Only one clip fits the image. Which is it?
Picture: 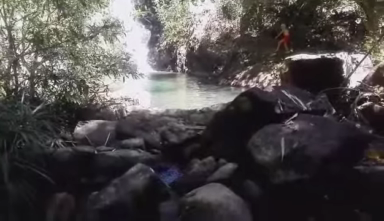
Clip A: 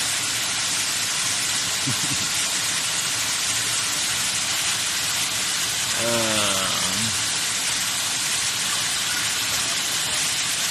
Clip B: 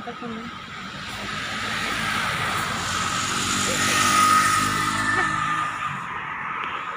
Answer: A